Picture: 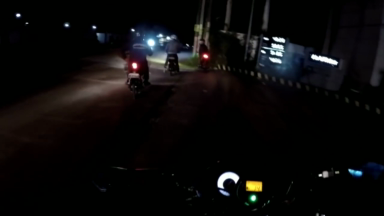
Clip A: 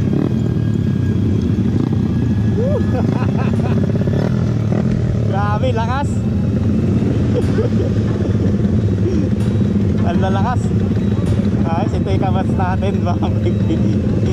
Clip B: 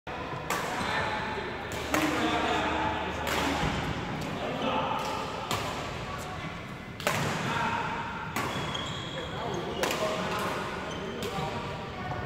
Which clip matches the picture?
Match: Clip A